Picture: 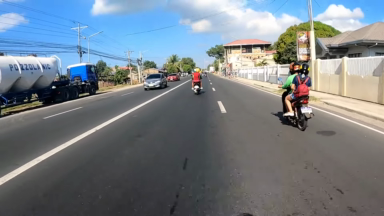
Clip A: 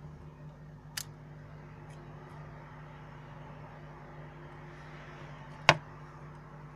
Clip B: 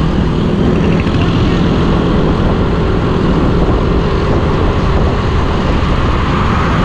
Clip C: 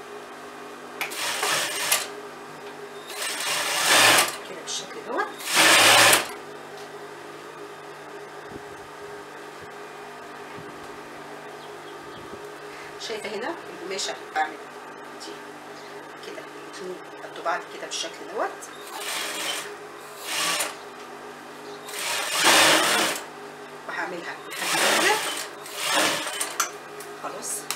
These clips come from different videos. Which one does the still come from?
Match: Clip B